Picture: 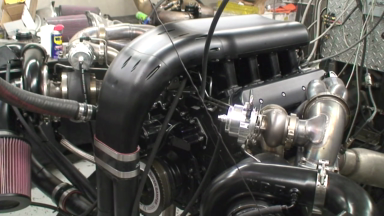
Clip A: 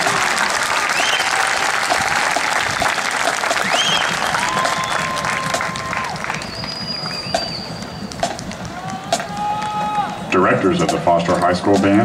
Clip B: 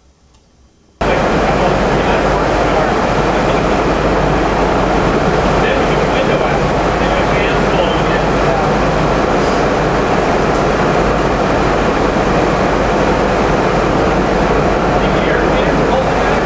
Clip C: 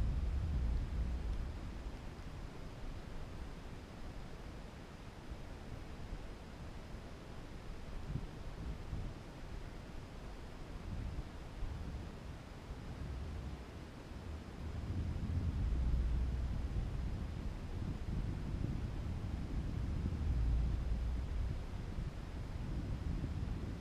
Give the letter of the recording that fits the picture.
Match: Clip B